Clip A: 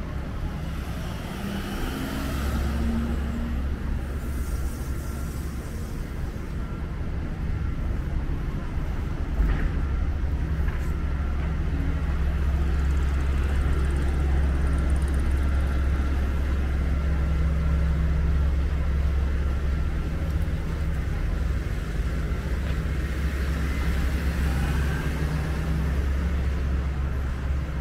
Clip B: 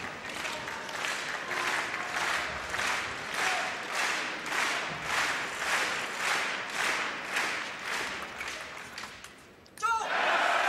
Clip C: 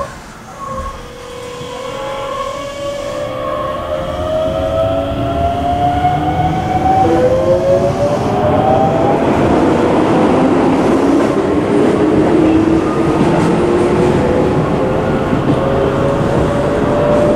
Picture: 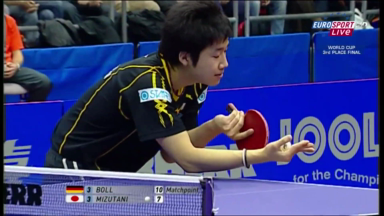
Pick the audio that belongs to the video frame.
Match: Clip B